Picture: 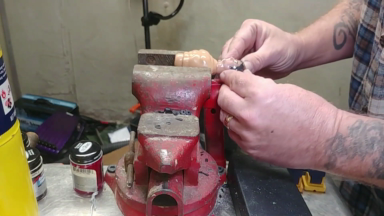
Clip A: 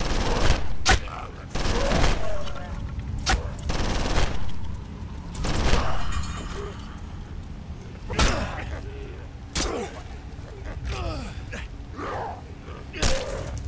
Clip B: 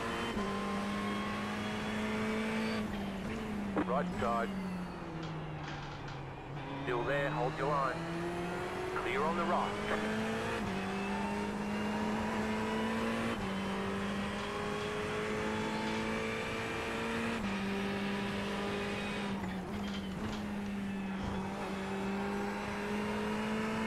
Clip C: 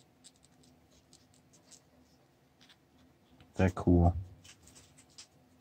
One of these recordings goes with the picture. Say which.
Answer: C